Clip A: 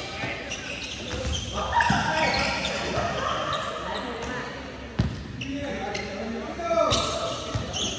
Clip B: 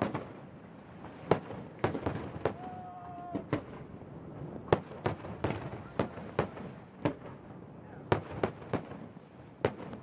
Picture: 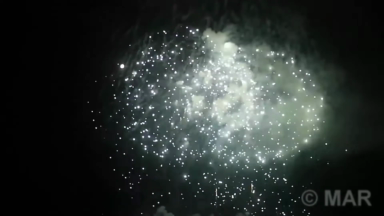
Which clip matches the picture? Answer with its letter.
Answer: B